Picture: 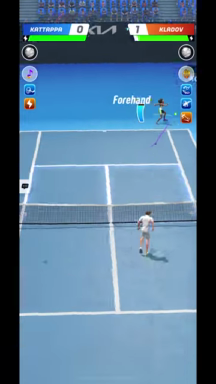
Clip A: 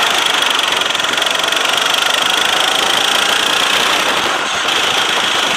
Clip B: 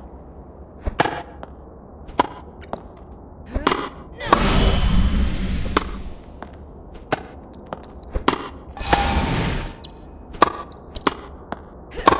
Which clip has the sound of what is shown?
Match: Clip B